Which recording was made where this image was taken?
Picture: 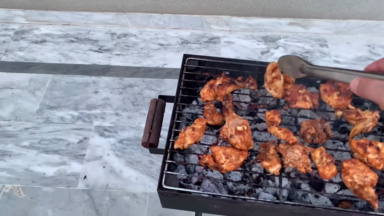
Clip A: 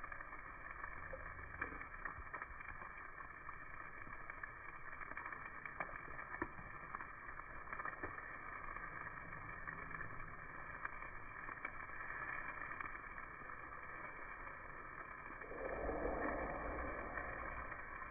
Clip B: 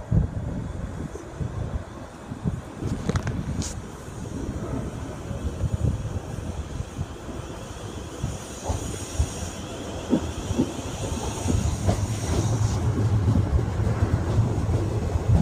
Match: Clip A